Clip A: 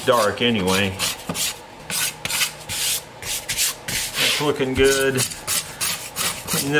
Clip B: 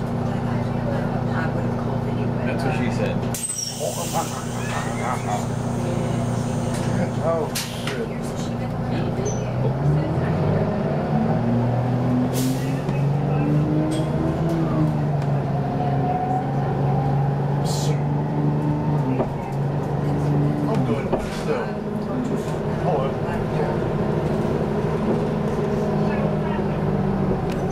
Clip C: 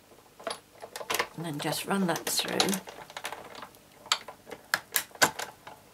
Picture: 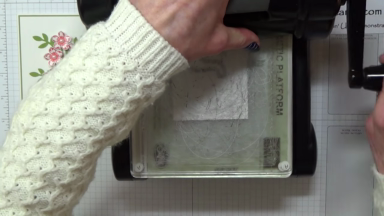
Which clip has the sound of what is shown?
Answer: C